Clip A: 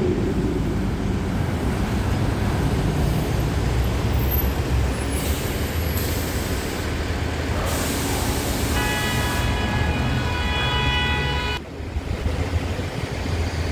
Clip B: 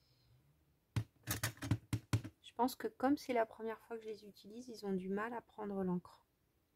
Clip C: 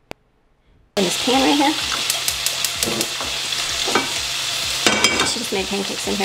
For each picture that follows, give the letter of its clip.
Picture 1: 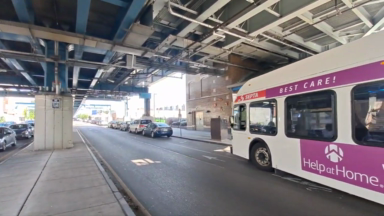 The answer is A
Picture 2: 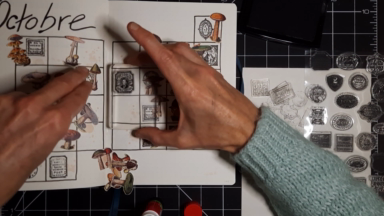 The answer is B